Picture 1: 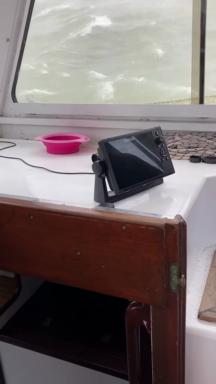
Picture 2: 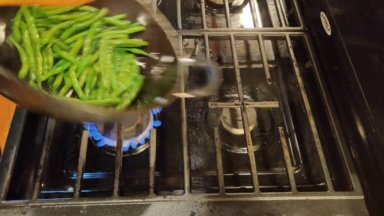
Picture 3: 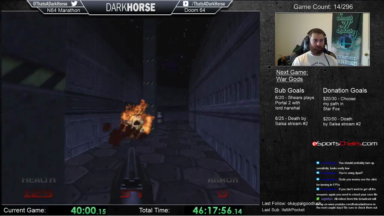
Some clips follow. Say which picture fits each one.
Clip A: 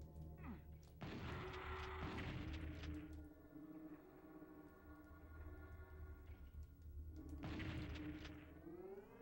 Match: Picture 3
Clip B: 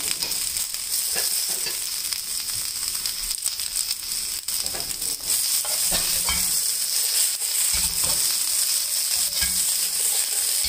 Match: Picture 2